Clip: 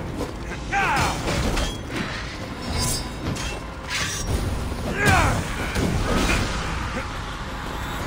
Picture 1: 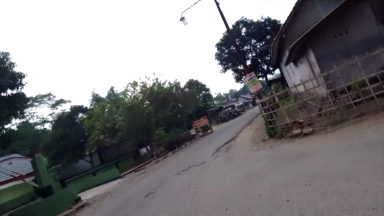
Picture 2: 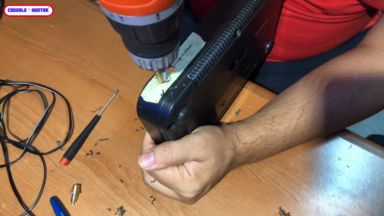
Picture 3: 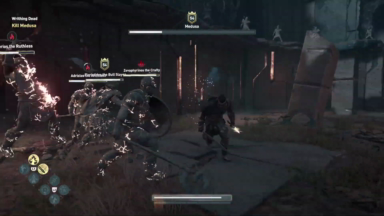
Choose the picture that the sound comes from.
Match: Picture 3